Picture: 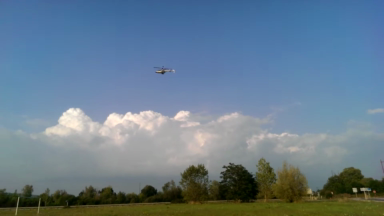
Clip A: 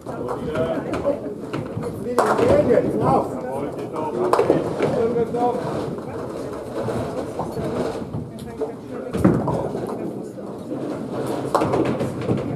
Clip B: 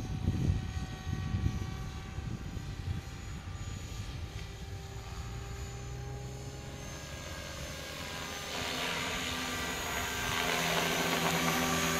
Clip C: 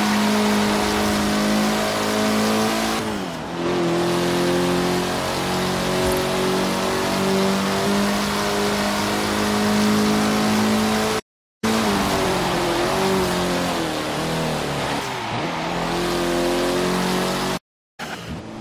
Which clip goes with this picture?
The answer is B